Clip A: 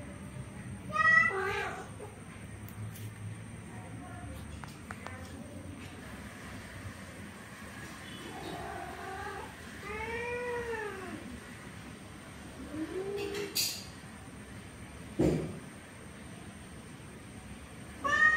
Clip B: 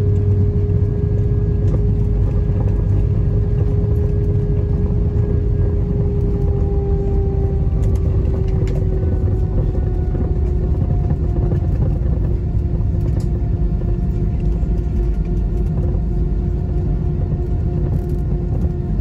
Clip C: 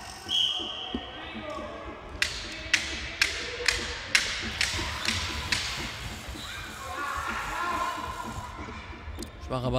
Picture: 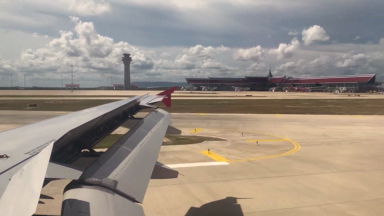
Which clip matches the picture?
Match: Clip B